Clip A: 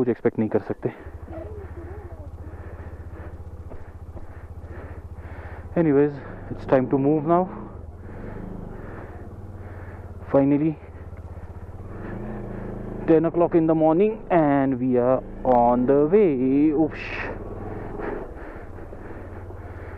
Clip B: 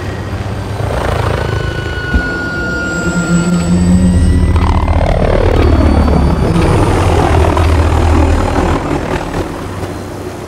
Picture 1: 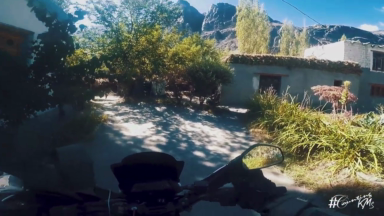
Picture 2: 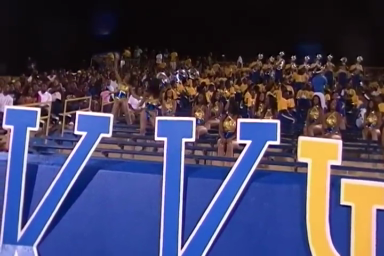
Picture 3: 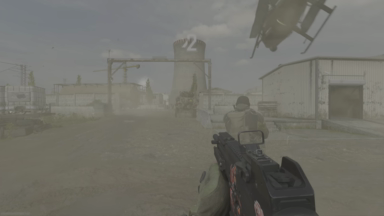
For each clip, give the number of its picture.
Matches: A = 1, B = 3